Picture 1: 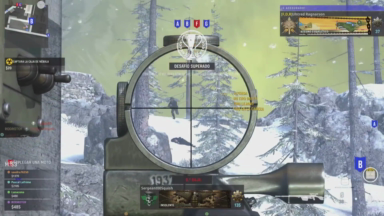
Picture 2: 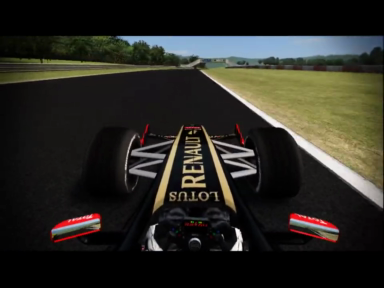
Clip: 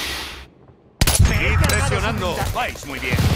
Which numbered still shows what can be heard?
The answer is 1